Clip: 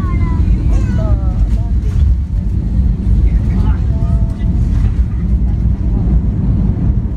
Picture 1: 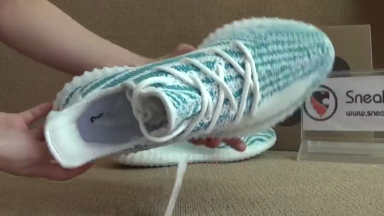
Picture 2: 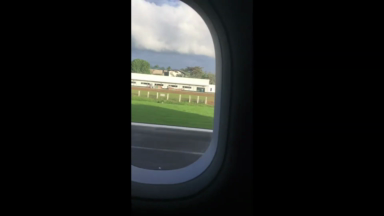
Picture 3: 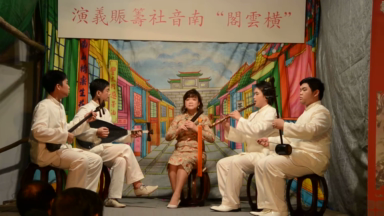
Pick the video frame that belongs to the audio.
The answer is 2